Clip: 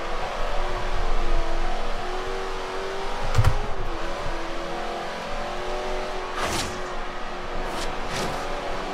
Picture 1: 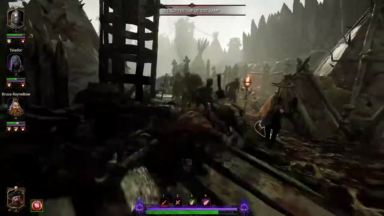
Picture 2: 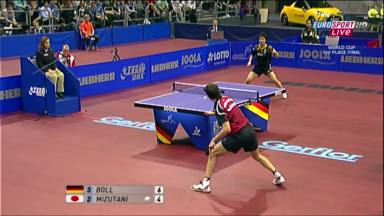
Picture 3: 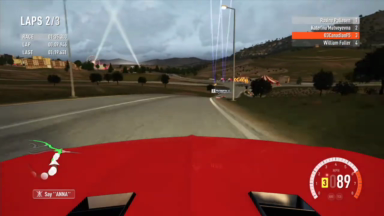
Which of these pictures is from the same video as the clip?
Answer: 3